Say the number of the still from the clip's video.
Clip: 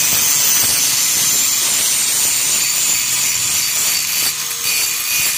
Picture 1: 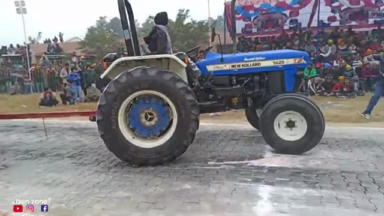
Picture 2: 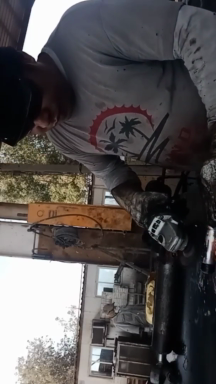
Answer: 2